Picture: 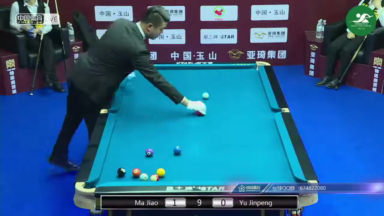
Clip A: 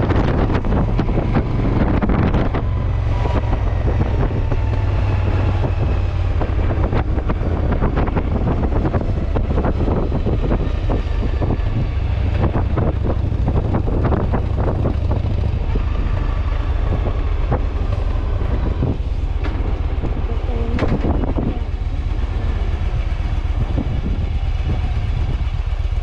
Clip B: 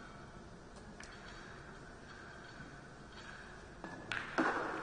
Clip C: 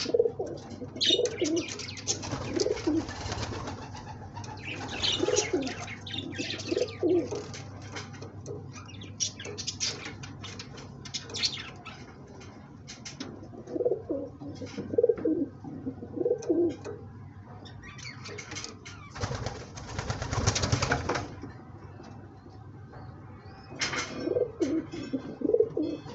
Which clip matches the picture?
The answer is B